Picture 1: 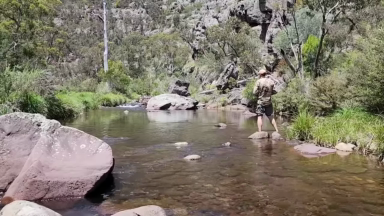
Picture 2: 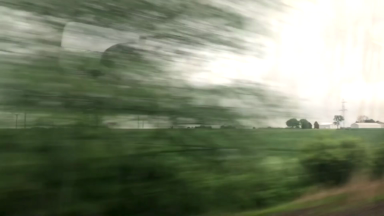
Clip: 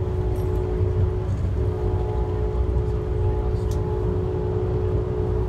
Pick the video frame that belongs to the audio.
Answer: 2